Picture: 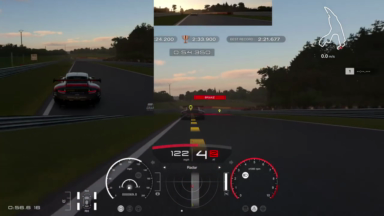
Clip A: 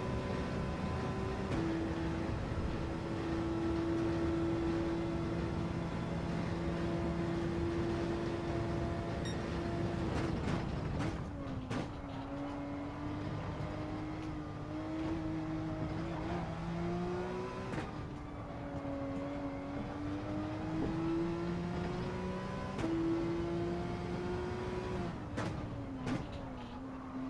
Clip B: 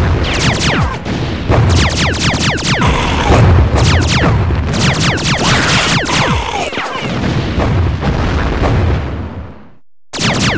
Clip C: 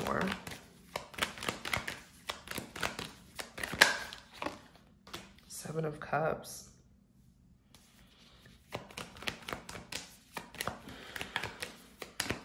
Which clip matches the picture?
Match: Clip A